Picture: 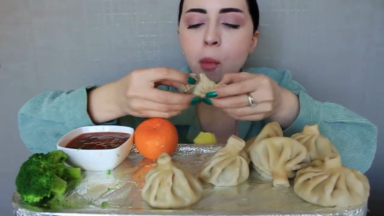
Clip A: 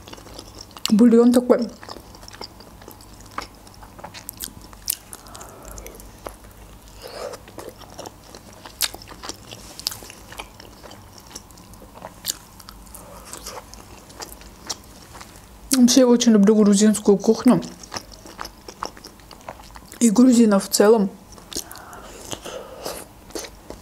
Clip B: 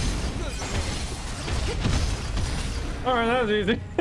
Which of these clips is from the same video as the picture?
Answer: A